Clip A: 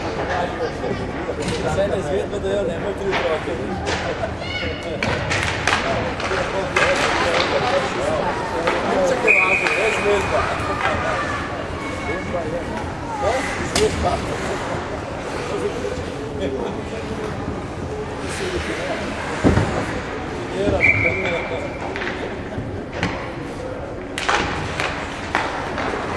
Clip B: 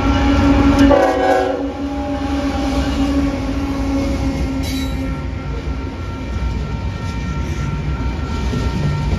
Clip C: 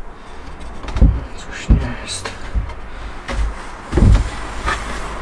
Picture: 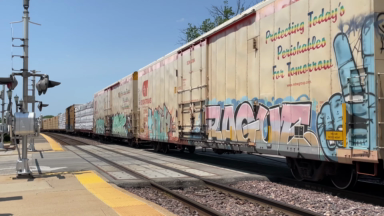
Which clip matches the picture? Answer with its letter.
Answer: B